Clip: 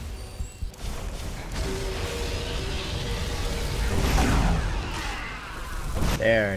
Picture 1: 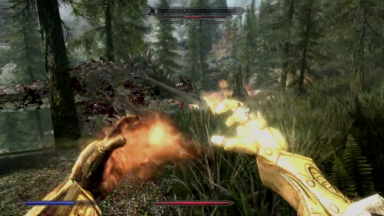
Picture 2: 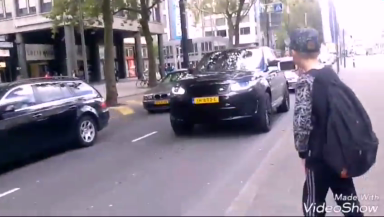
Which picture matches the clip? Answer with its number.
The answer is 1